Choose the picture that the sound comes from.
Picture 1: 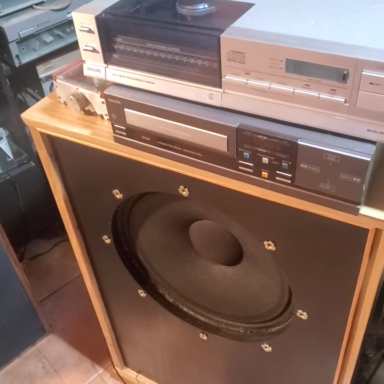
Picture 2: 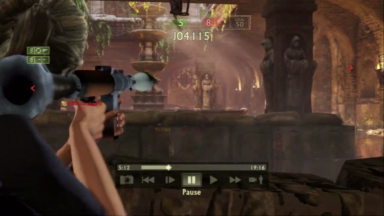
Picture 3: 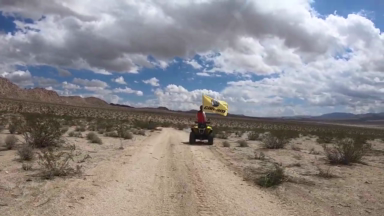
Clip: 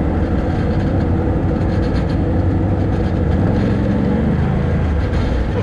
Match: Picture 3